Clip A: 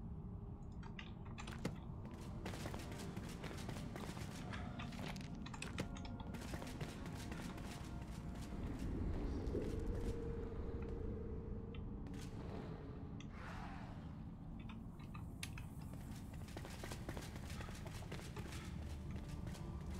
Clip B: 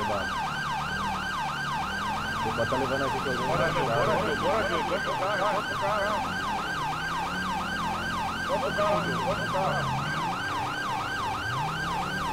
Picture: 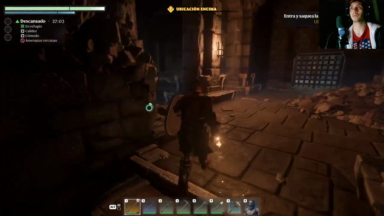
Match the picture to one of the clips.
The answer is A